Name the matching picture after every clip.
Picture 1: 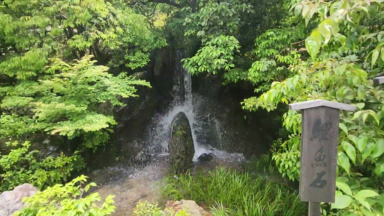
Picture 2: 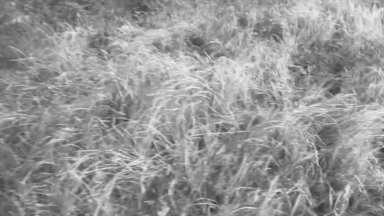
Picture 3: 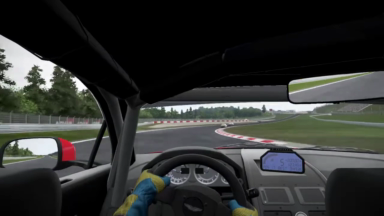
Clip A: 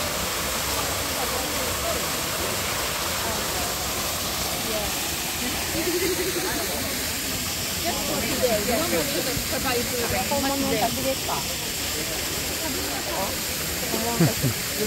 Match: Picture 1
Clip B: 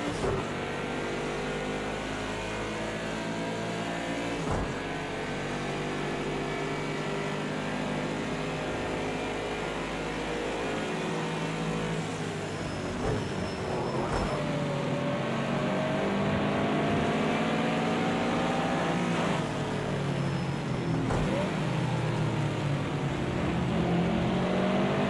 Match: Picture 3